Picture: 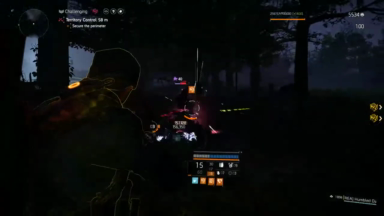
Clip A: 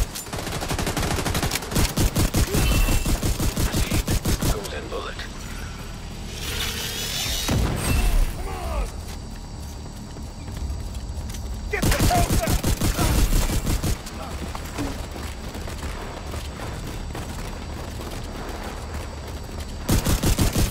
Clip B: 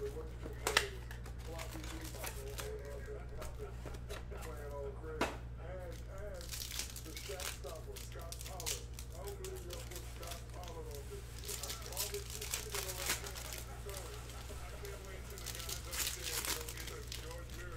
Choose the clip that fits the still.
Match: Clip A